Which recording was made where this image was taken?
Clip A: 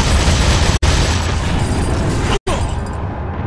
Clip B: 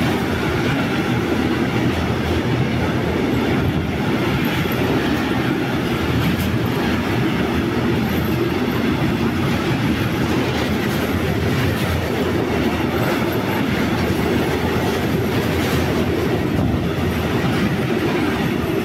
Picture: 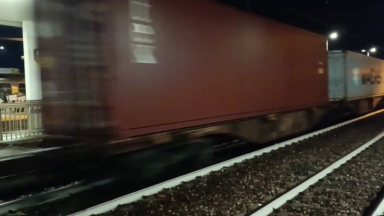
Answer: B